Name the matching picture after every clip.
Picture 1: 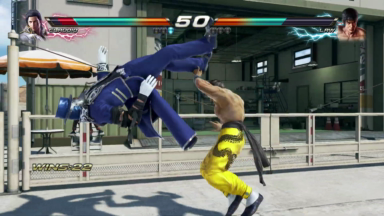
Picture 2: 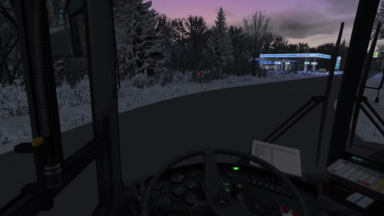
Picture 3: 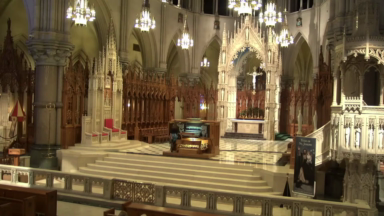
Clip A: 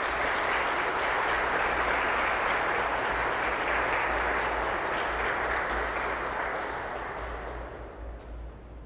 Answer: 3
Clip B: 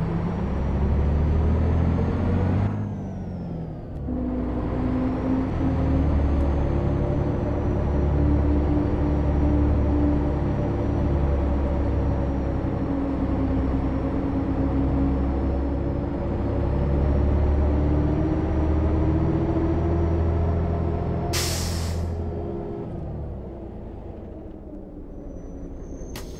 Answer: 2